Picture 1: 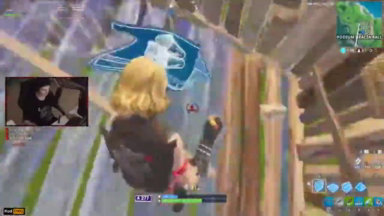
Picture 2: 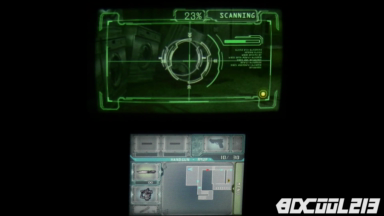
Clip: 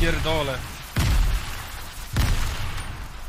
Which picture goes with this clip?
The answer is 1